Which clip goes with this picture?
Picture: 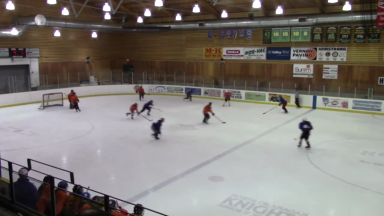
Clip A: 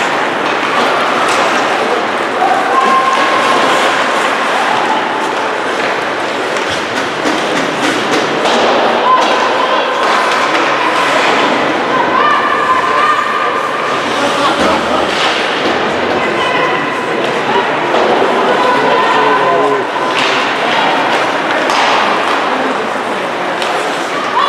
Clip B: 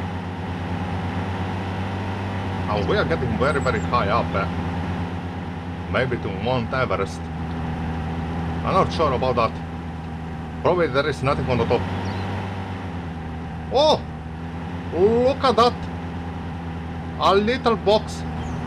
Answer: A